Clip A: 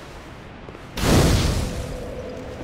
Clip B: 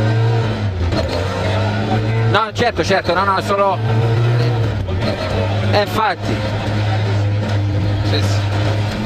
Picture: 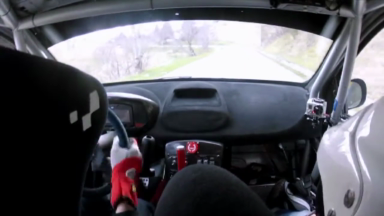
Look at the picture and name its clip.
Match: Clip B